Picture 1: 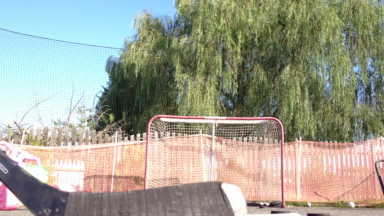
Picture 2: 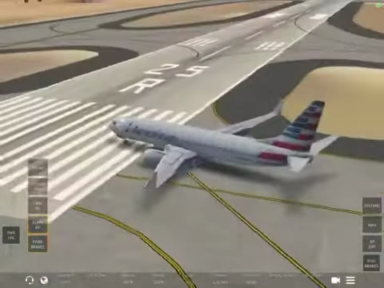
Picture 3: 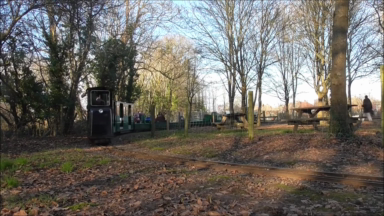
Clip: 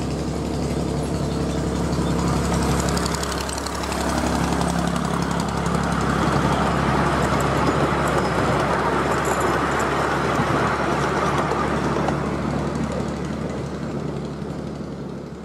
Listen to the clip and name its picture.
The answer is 3